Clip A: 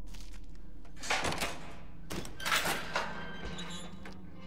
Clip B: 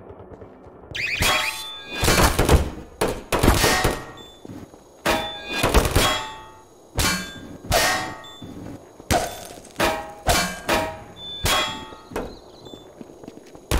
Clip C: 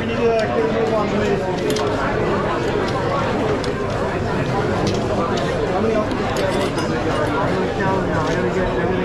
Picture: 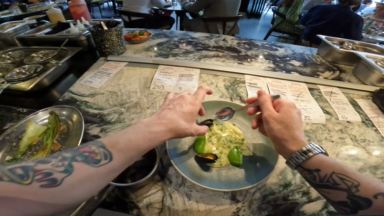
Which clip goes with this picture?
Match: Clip C